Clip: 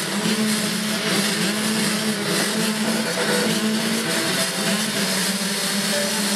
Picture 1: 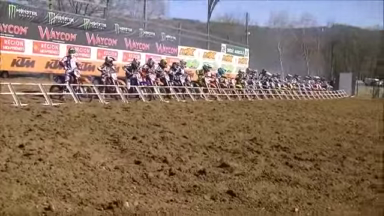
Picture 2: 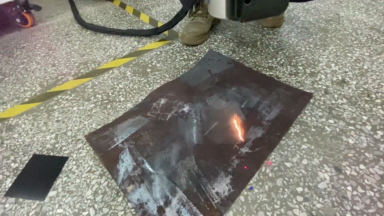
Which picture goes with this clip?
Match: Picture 1